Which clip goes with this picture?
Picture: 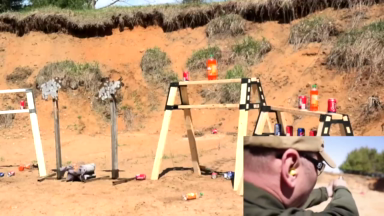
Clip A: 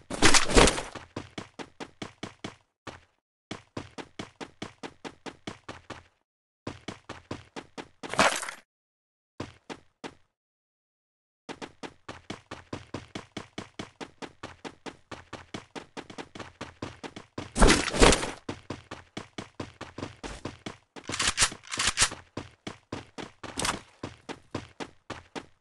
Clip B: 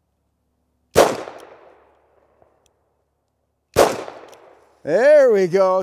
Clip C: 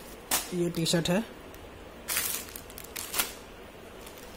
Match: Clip B